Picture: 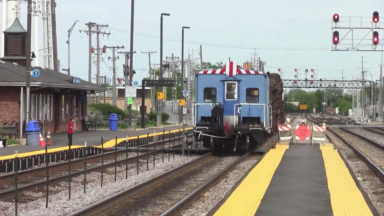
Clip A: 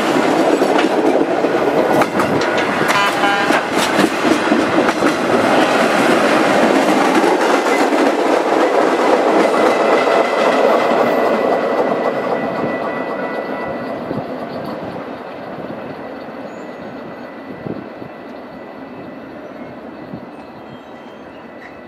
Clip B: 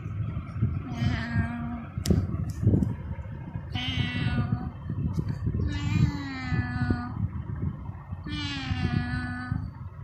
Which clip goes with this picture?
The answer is A